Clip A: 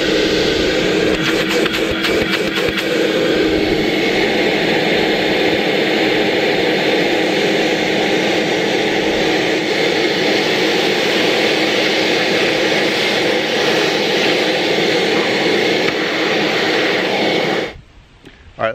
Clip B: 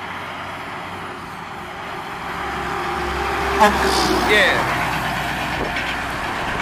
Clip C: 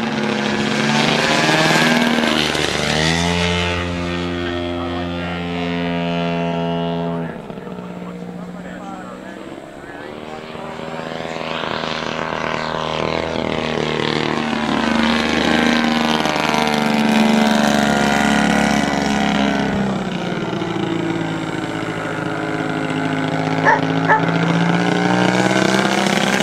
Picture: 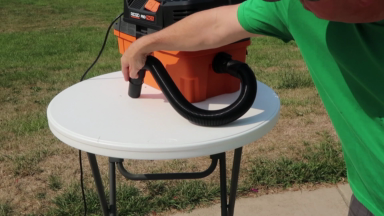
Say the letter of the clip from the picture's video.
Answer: A